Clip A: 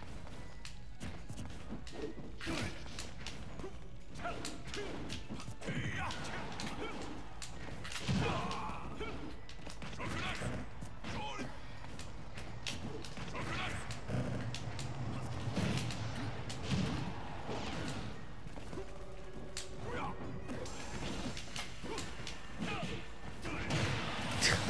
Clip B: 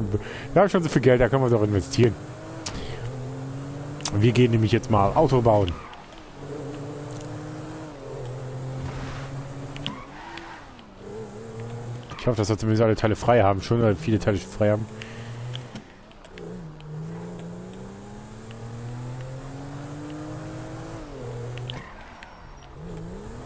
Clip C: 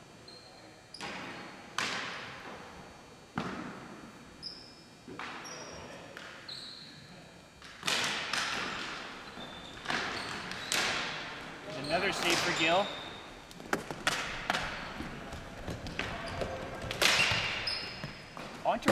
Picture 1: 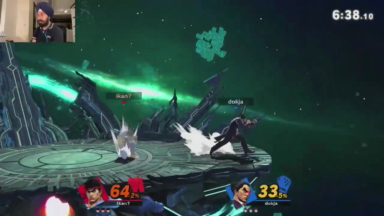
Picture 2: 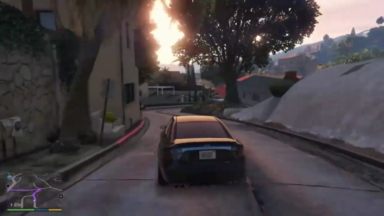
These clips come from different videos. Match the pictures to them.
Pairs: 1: A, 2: B